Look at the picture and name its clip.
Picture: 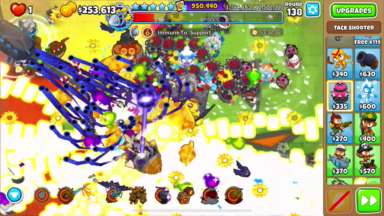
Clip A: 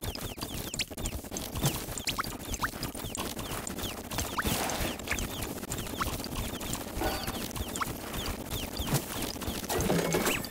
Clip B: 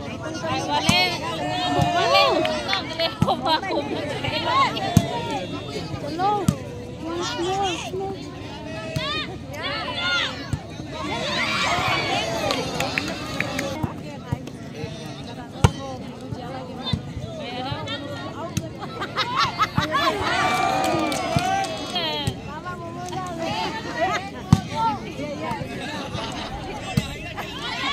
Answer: A